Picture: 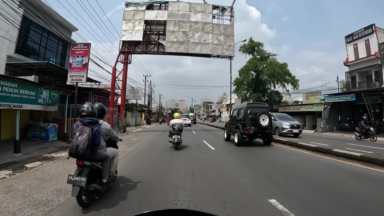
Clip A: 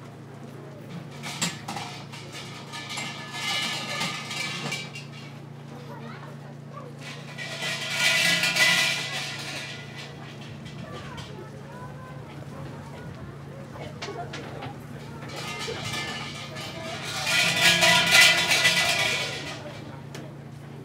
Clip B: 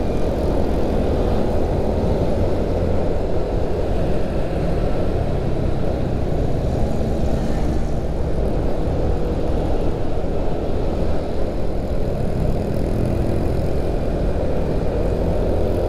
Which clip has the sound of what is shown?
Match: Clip B